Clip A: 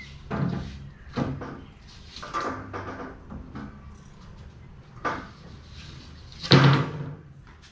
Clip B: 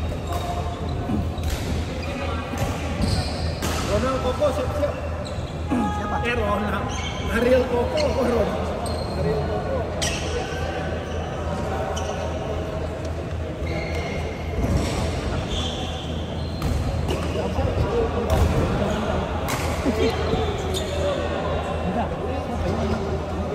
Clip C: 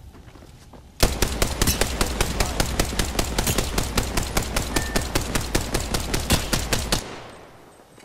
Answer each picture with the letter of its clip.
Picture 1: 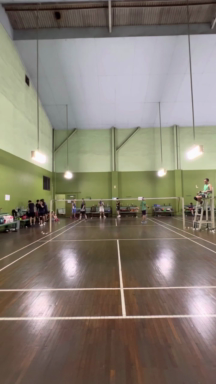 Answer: B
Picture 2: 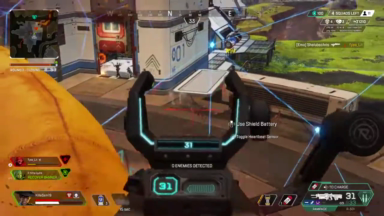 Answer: C